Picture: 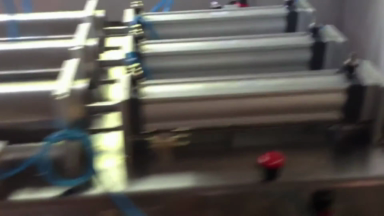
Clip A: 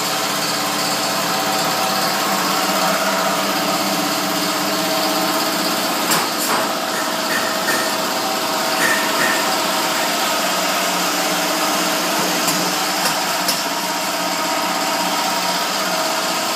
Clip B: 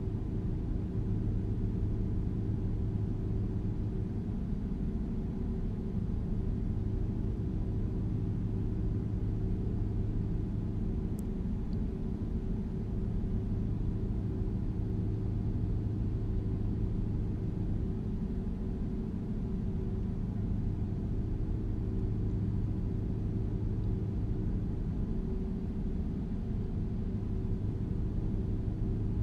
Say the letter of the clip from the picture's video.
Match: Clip A